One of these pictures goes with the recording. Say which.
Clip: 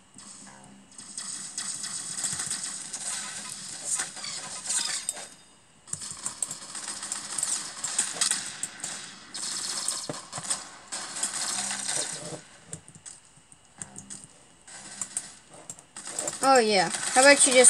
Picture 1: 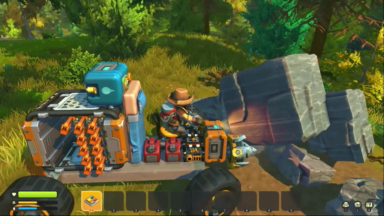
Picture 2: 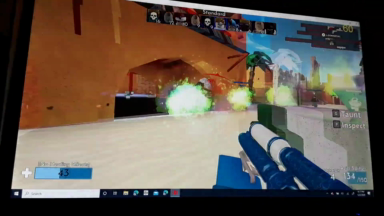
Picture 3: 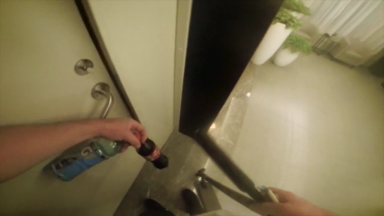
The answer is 2